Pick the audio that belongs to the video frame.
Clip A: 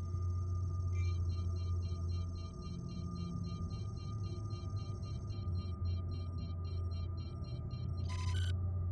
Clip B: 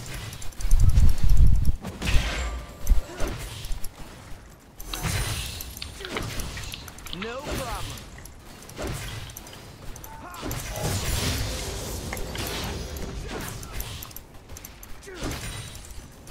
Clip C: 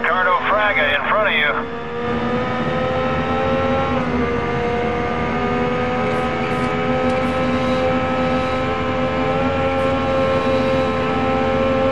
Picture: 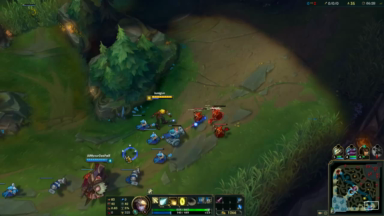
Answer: B